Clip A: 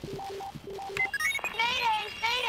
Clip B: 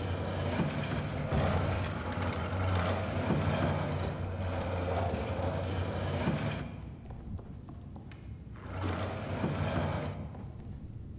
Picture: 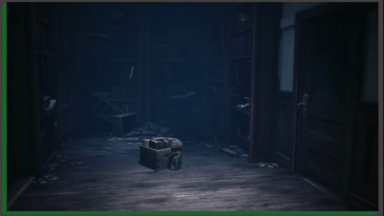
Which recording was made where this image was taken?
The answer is B